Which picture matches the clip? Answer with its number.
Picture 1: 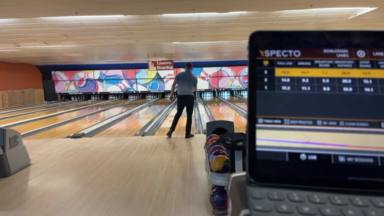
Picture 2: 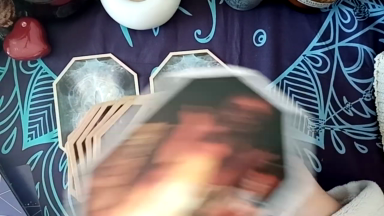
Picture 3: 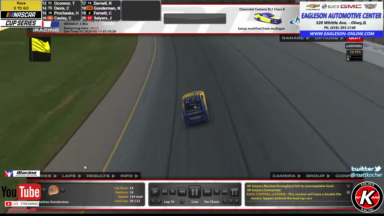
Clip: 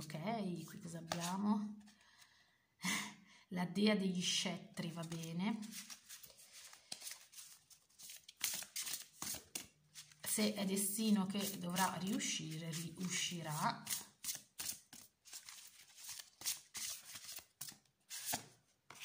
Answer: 2